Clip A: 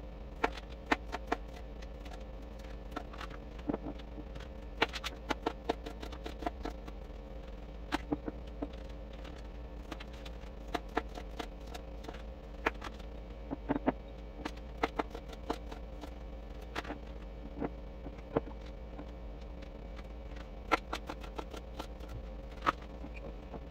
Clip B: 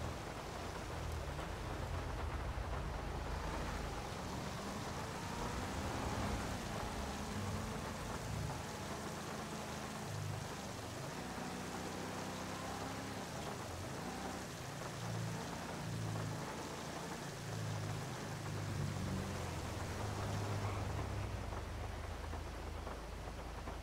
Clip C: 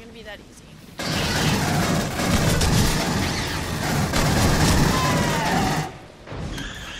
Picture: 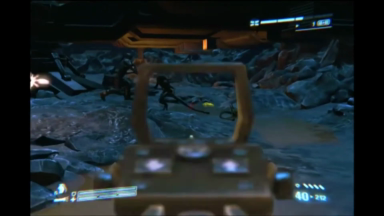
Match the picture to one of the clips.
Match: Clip C